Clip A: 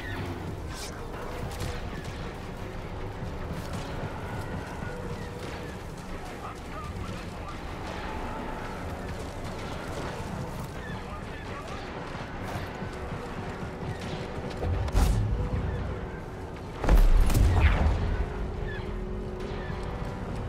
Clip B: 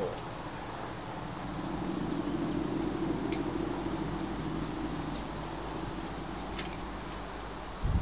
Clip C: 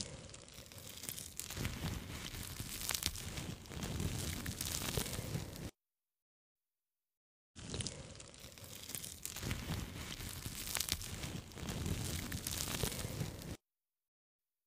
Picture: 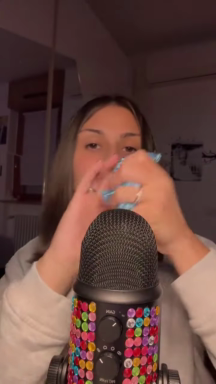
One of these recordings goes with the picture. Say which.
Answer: C